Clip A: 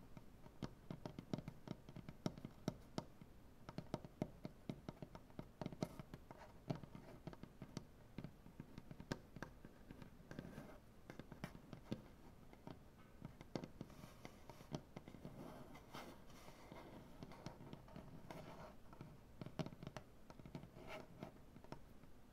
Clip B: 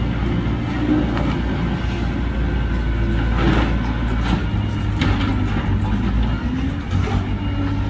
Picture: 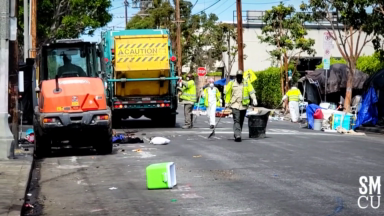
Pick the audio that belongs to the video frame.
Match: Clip B